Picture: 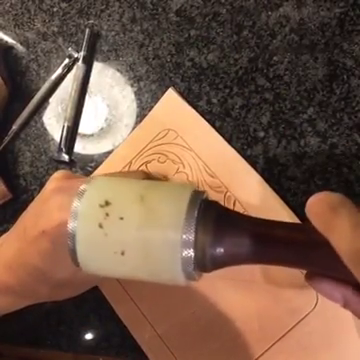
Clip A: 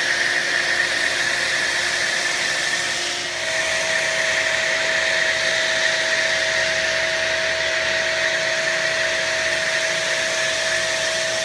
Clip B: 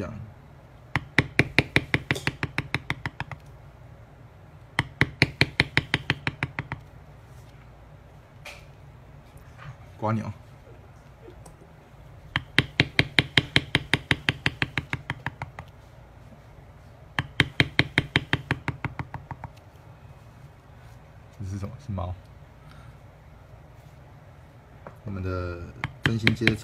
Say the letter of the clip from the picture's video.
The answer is B